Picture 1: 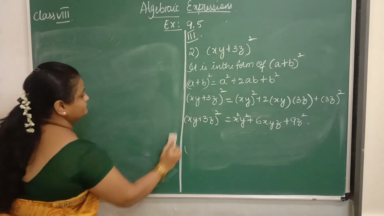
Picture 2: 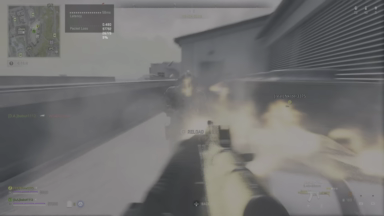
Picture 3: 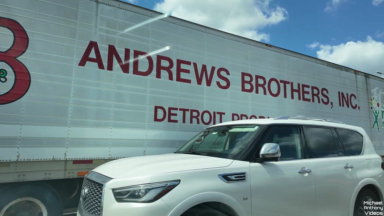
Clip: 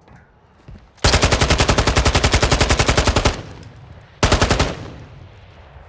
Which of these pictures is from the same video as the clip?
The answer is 2